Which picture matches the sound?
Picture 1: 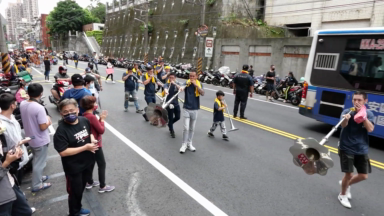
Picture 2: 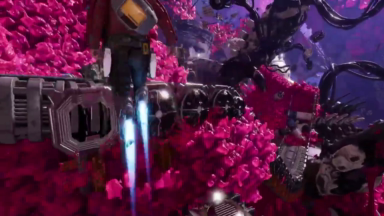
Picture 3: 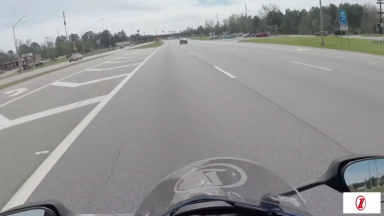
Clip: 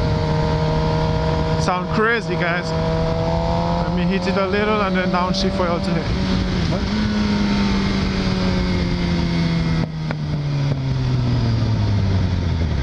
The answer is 3